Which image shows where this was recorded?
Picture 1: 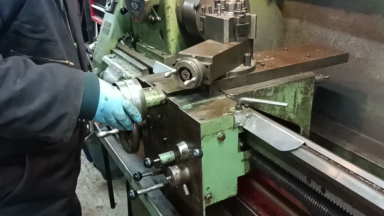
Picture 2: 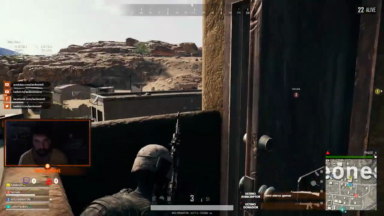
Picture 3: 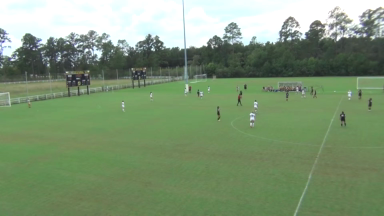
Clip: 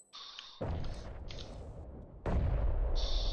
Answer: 2